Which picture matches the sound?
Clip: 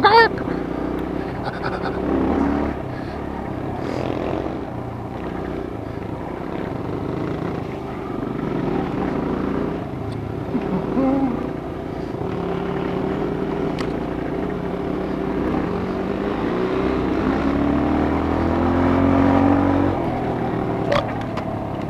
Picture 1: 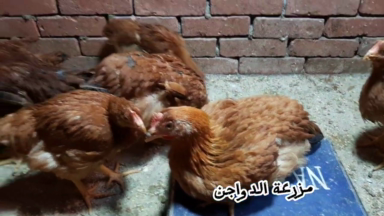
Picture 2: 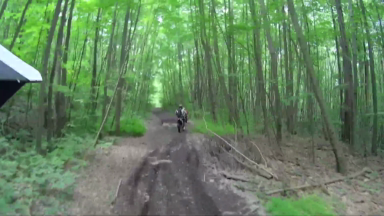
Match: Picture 2